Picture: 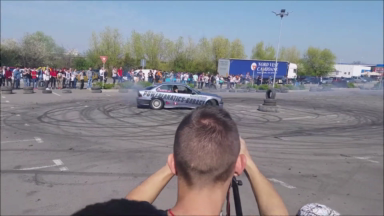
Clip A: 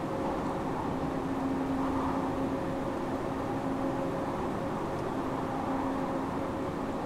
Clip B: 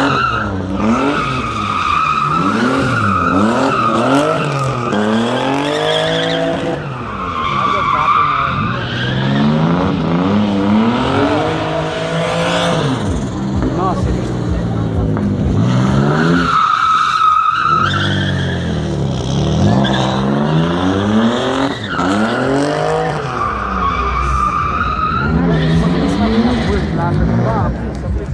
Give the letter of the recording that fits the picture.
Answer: B